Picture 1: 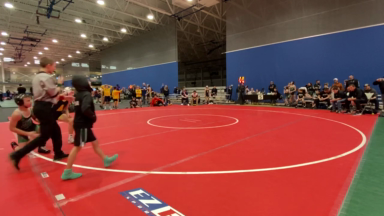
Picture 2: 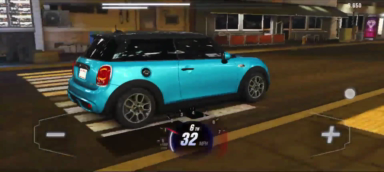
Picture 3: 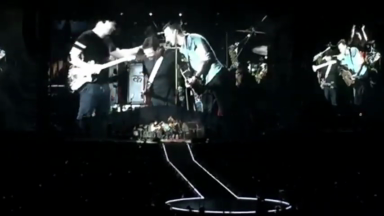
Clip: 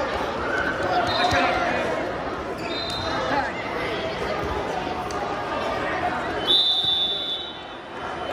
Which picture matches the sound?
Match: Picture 1